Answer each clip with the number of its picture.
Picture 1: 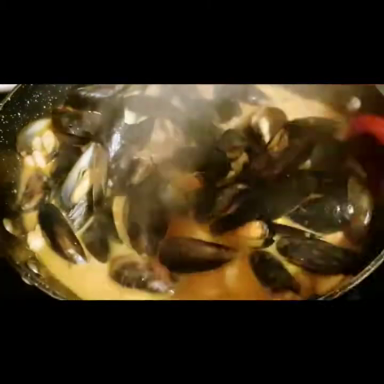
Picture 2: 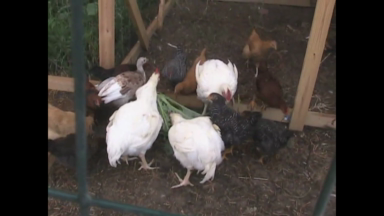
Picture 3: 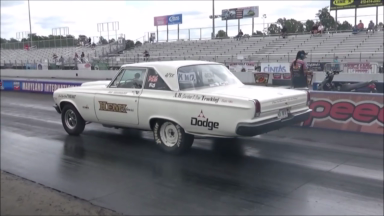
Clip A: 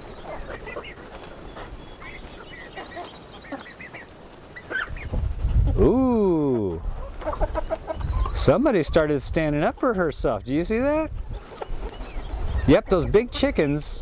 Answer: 2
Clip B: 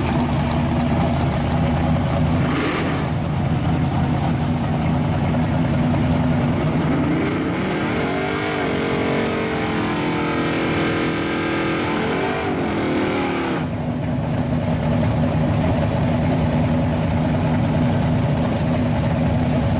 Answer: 3